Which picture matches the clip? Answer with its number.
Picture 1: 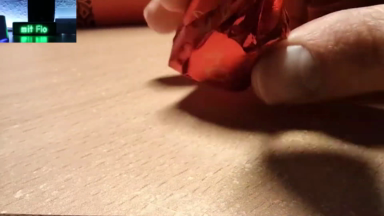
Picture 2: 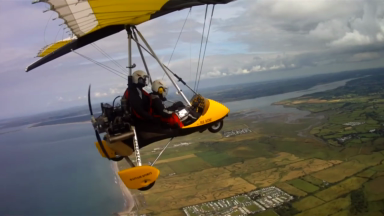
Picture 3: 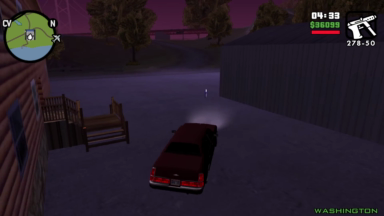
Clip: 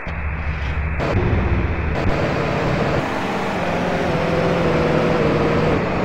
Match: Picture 3